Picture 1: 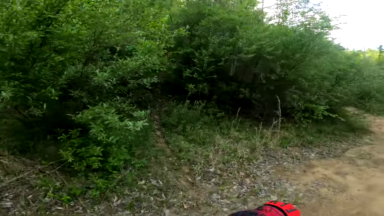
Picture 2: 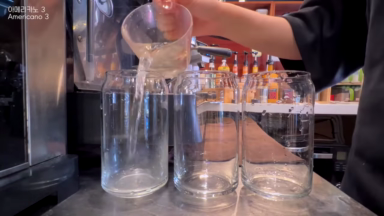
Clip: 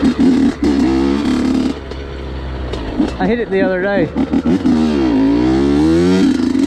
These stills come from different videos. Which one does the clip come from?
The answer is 1